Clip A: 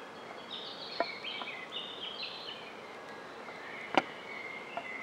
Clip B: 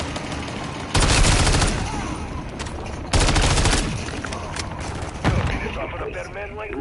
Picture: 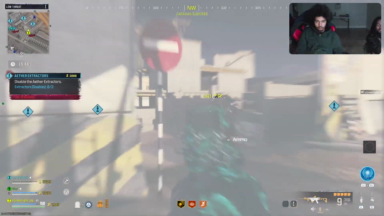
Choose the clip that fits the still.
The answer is B